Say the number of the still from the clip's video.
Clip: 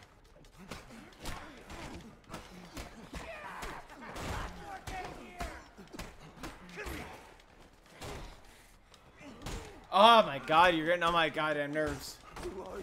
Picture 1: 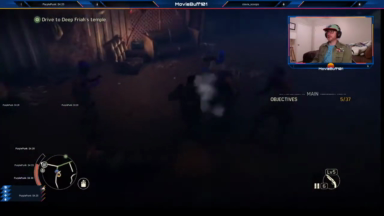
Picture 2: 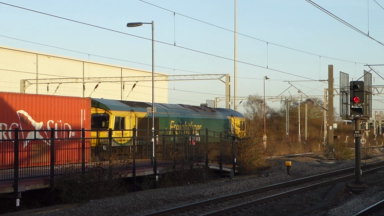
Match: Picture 1